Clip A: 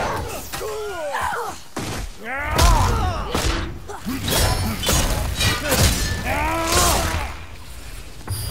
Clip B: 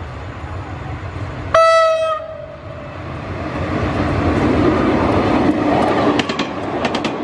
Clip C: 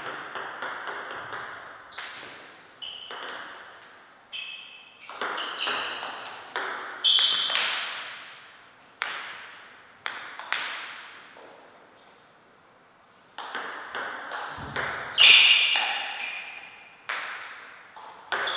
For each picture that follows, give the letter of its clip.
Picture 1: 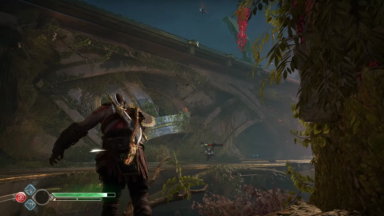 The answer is A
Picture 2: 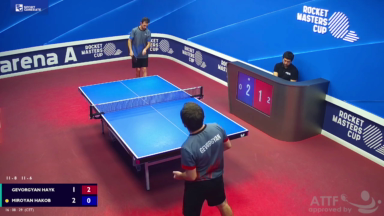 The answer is C